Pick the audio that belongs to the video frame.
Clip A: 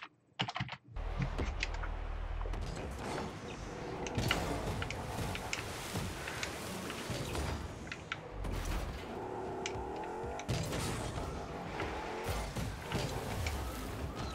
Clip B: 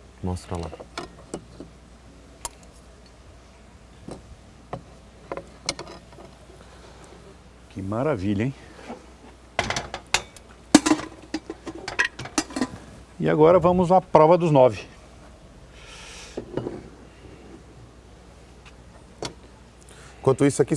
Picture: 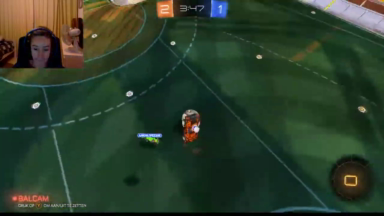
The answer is A